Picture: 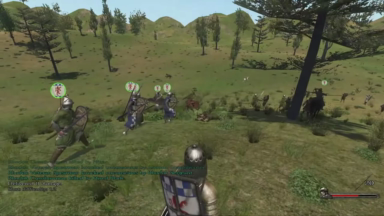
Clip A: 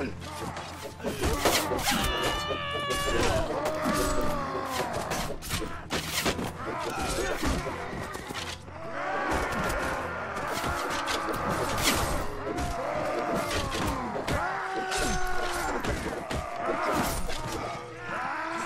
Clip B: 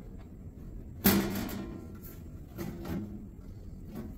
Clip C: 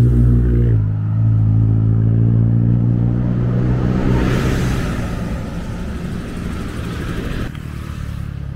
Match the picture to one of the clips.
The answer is A